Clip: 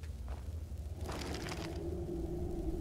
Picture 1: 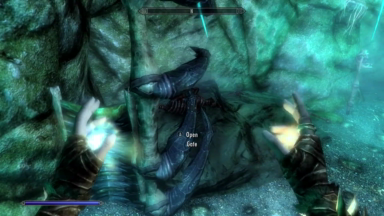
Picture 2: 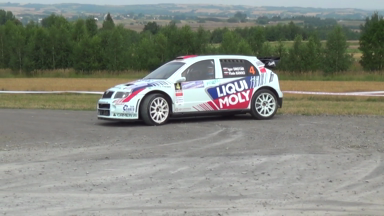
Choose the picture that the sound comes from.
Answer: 1